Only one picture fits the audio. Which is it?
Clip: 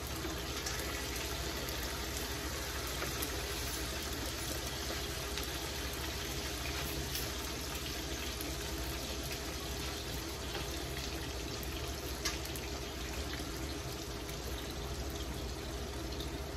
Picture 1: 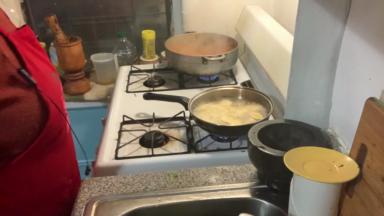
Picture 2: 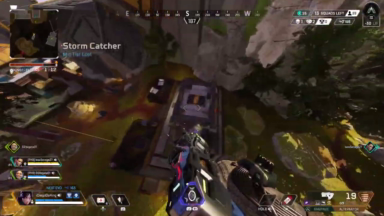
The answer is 1